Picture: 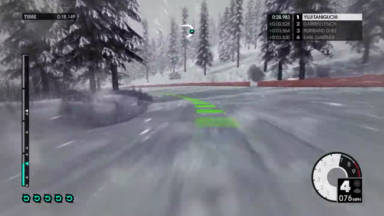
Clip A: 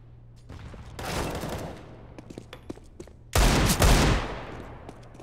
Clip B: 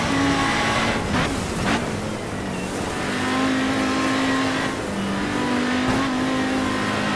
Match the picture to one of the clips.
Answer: B